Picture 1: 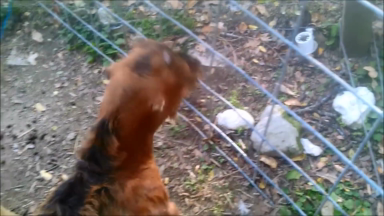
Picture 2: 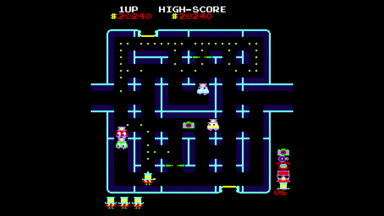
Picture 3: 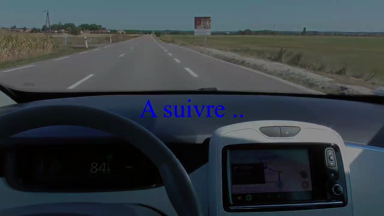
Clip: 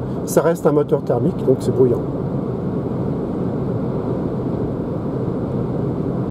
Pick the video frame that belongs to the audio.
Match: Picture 3